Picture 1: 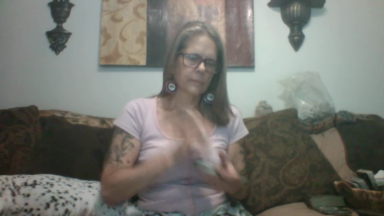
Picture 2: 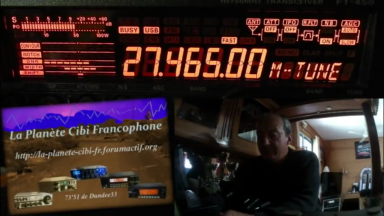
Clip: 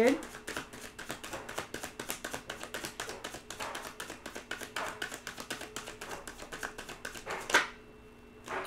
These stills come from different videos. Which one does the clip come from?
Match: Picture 1